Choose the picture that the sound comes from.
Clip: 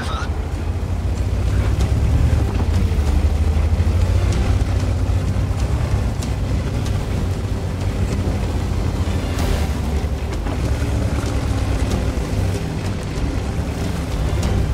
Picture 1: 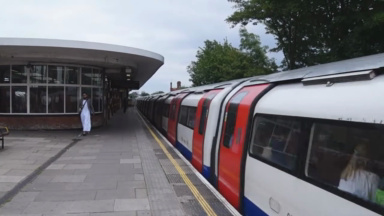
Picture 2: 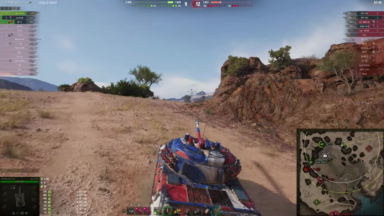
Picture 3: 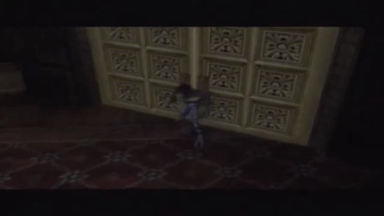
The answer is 2